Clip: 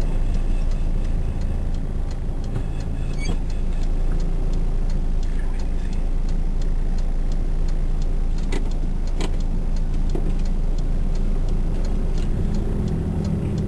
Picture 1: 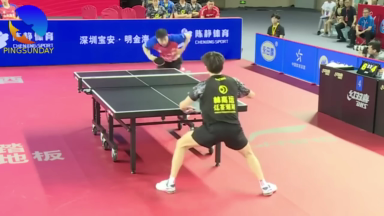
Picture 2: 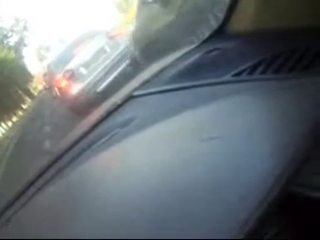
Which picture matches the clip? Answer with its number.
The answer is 2